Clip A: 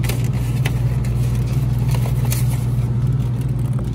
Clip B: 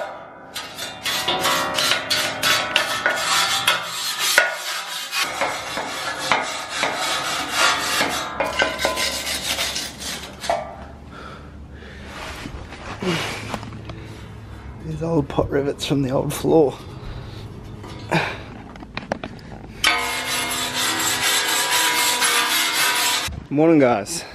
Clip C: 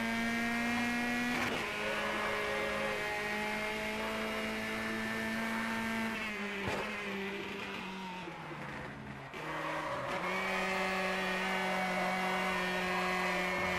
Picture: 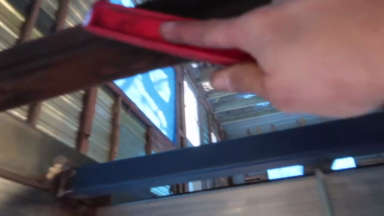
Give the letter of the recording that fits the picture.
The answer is B